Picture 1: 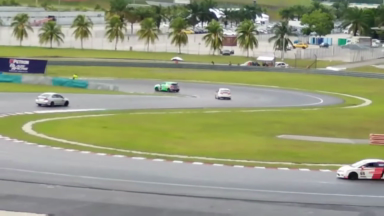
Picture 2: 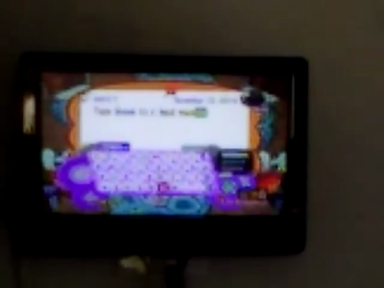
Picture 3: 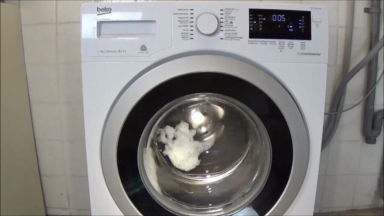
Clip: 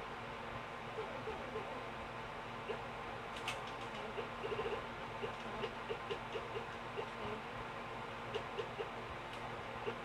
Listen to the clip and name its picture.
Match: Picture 2